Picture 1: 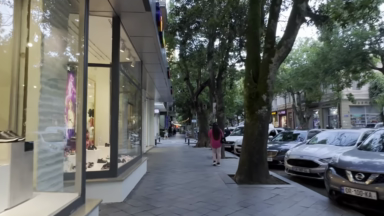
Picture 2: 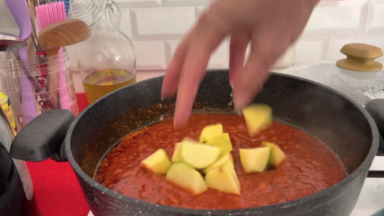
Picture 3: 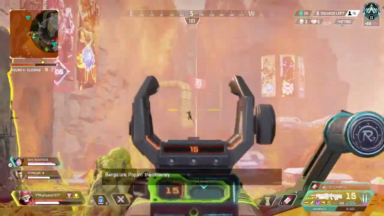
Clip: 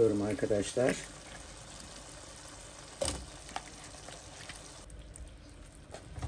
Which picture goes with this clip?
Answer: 2